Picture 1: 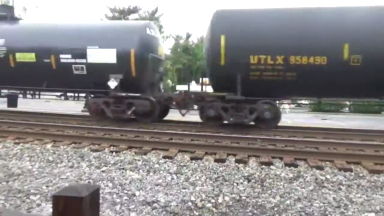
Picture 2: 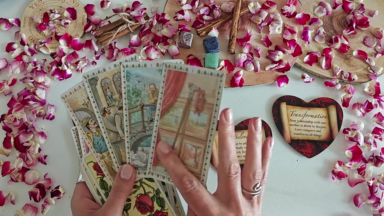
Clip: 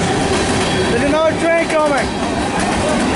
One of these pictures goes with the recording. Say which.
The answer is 1